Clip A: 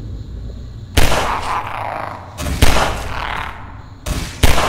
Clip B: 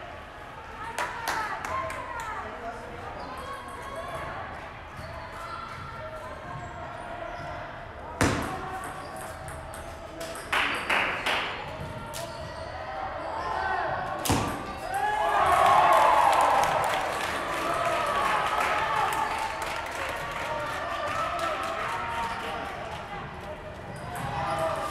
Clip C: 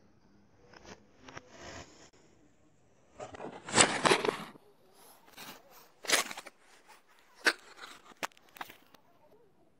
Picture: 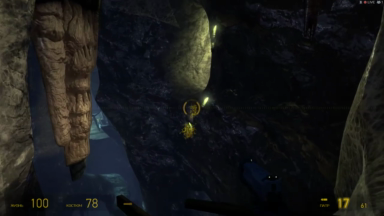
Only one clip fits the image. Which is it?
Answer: A